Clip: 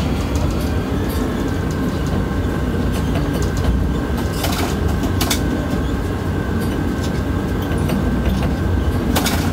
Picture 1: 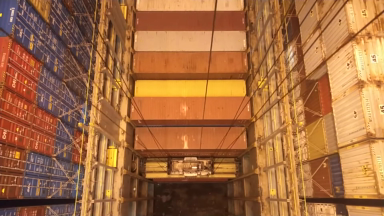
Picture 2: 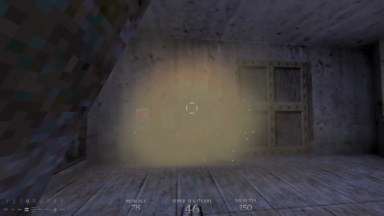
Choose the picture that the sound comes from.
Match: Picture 1